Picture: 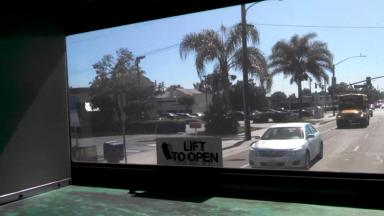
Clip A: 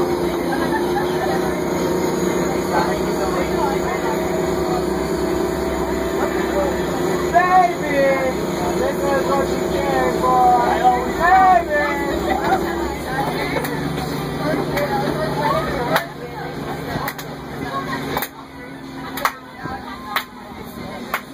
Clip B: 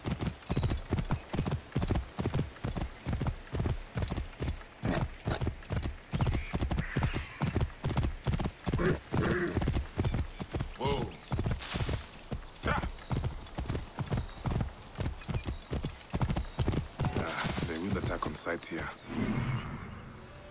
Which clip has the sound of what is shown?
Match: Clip A